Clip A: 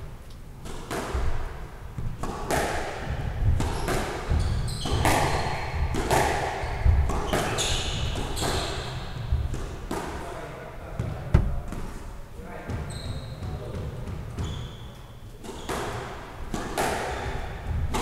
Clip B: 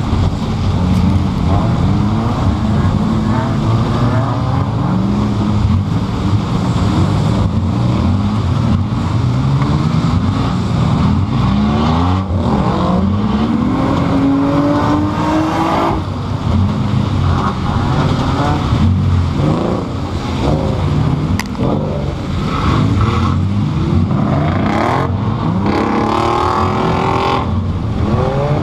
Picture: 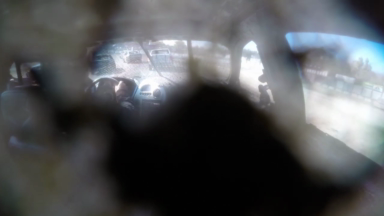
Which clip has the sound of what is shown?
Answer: B